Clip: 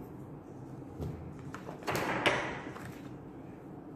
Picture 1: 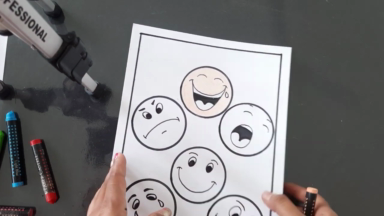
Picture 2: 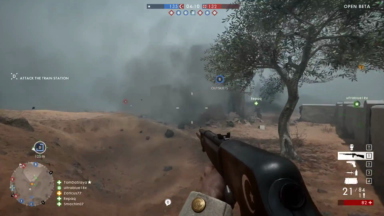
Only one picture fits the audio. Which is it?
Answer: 1